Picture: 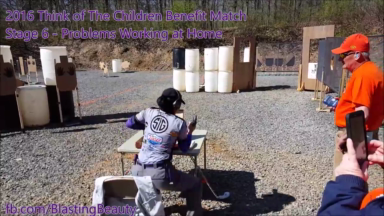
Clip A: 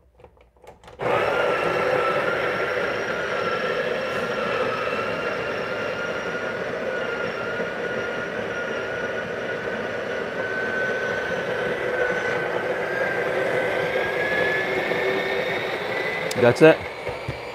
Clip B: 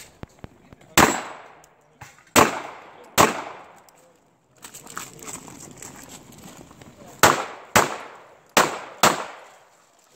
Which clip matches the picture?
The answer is B